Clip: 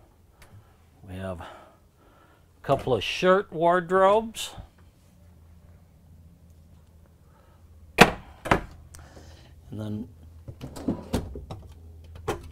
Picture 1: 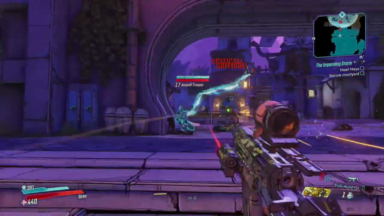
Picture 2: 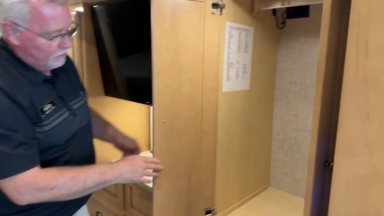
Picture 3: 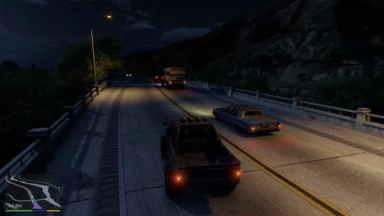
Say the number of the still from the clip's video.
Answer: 2